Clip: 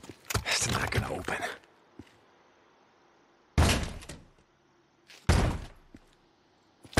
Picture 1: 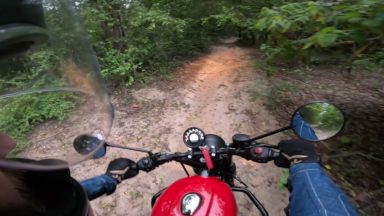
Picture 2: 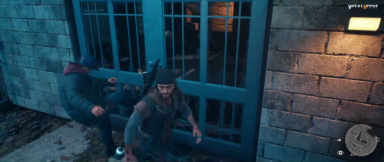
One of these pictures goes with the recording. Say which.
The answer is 2